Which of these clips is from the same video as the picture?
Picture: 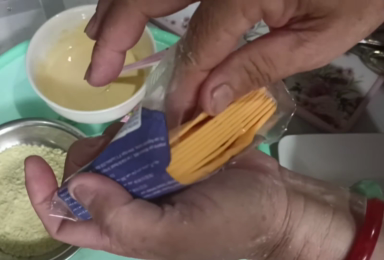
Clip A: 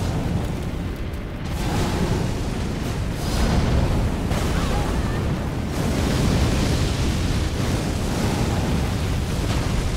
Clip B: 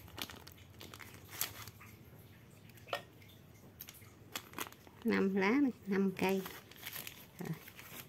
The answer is B